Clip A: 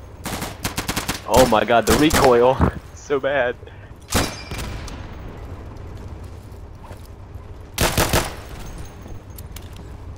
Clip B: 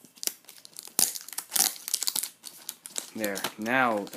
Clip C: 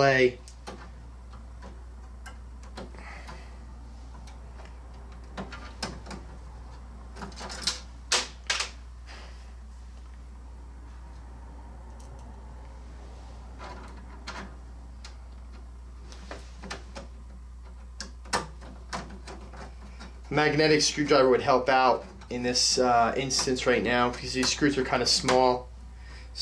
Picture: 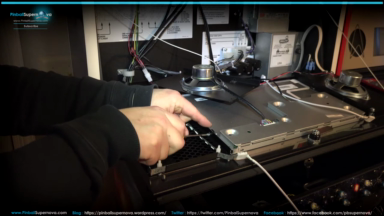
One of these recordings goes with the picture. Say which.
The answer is C